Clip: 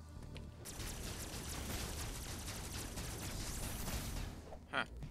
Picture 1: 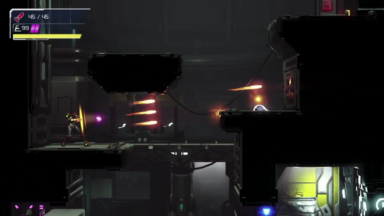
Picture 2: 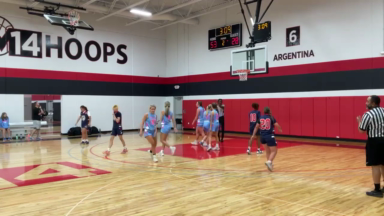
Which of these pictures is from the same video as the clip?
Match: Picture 1